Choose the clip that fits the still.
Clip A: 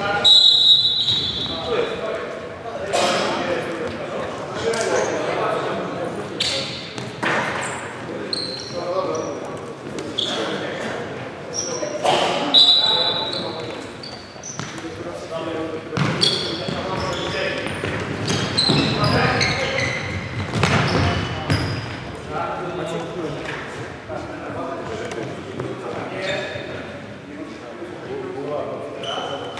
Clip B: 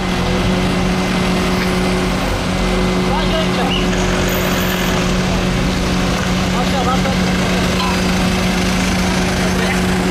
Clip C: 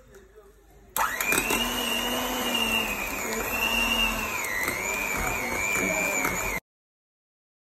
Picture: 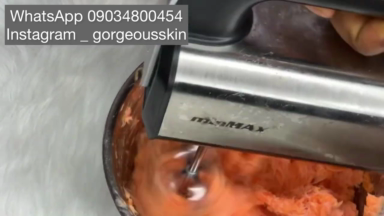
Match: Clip C